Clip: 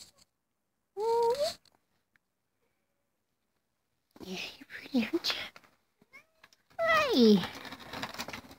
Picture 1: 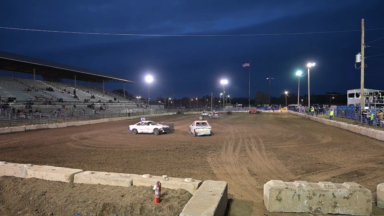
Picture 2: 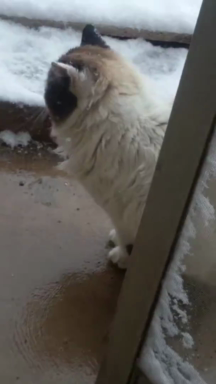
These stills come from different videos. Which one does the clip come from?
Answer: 2